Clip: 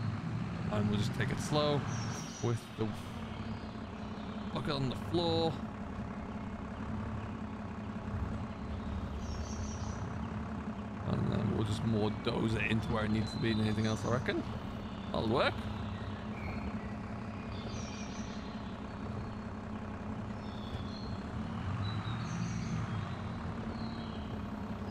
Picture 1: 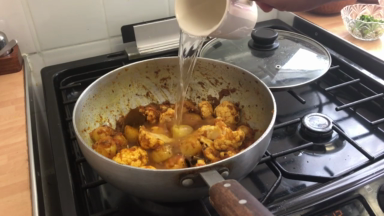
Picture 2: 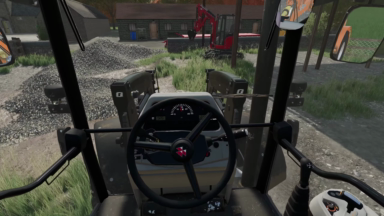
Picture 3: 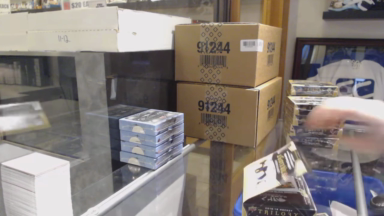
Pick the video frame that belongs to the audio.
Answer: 2